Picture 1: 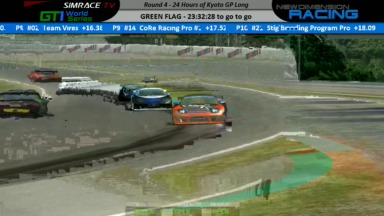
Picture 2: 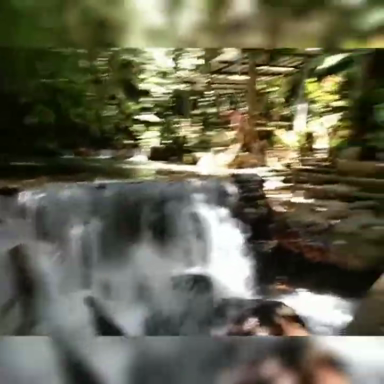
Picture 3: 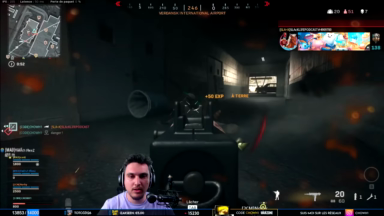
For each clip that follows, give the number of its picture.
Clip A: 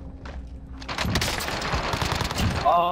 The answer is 3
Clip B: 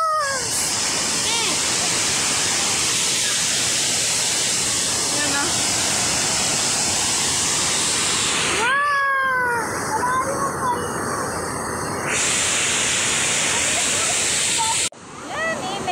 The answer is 2